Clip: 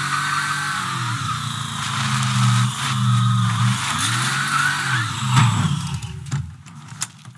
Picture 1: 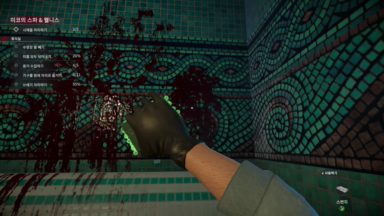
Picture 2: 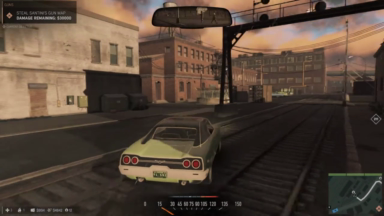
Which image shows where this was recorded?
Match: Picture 2